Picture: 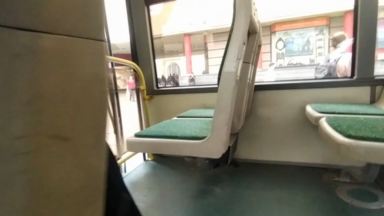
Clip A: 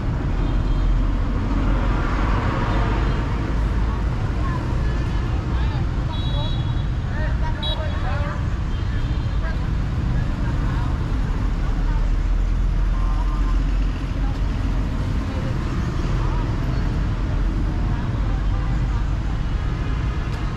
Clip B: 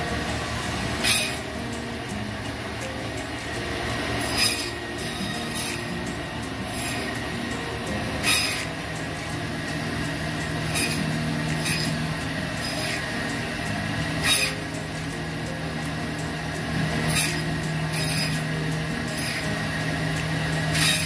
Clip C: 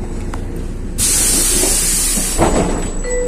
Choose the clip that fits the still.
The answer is C